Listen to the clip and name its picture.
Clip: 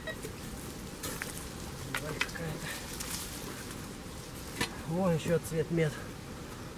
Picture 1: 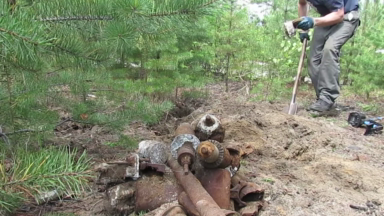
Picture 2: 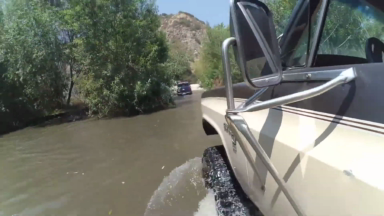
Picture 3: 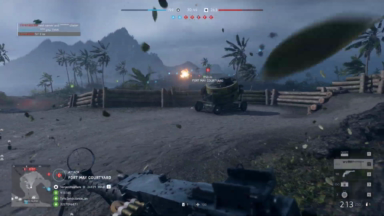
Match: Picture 1